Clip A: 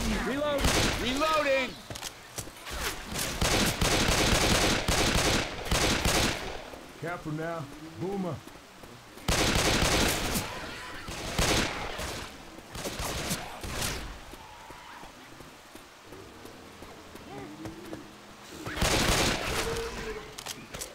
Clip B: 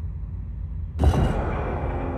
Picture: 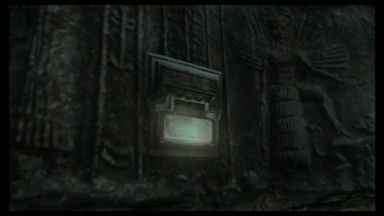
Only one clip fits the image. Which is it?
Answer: B